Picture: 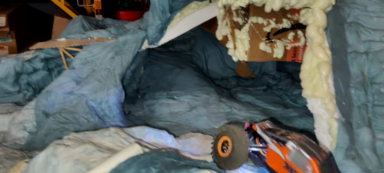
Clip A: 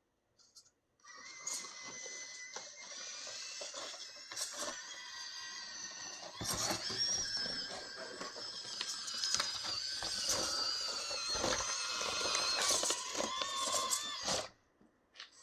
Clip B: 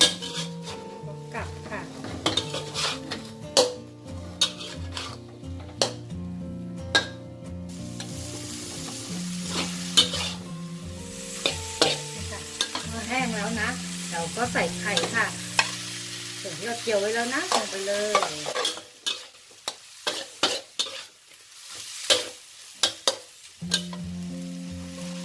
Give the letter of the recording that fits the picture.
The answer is A